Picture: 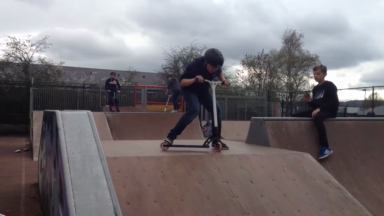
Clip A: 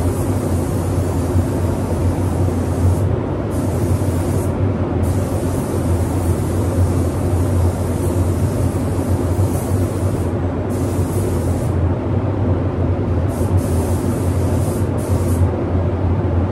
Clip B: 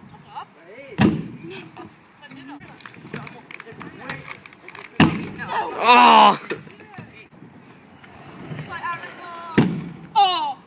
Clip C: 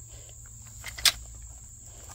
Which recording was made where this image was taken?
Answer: B